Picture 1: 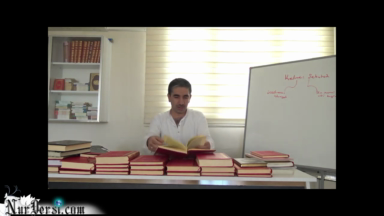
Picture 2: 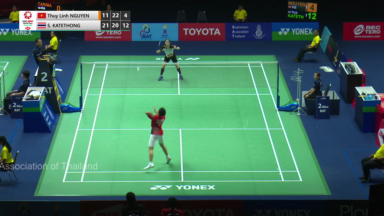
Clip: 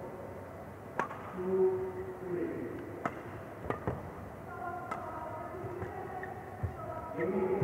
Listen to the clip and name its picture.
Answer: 2